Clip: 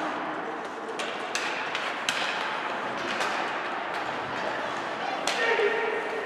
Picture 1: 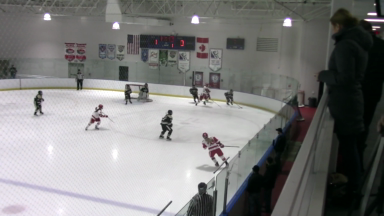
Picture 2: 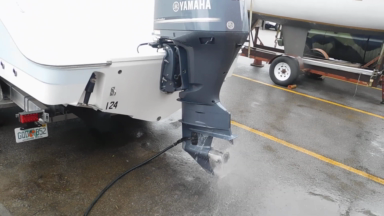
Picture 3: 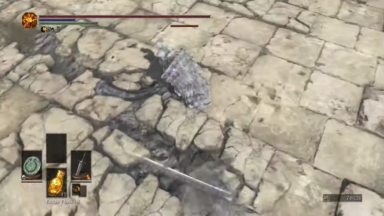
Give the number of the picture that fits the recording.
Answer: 1